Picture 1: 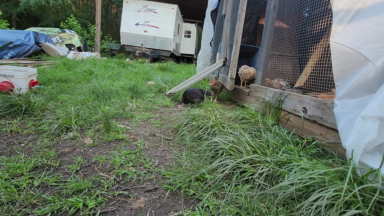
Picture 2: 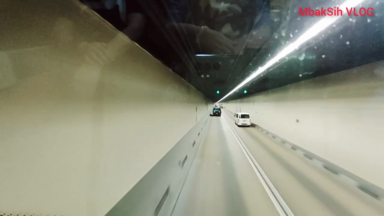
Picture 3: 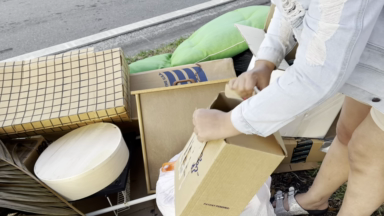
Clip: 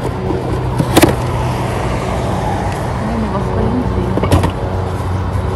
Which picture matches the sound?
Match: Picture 3